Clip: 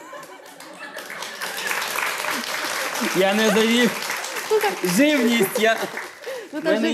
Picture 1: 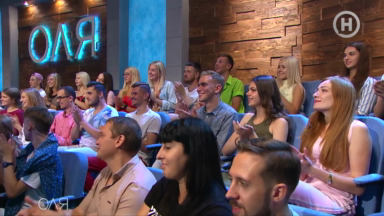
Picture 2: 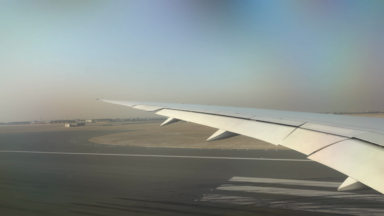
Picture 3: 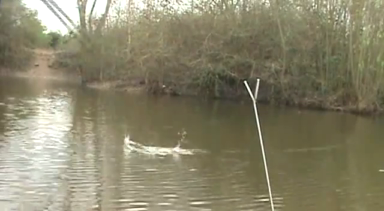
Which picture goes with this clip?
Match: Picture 1